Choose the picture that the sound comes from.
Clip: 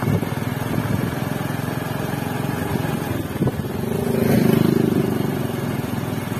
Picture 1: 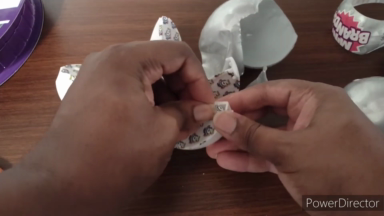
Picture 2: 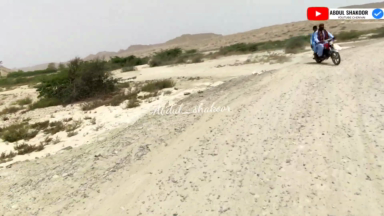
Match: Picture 2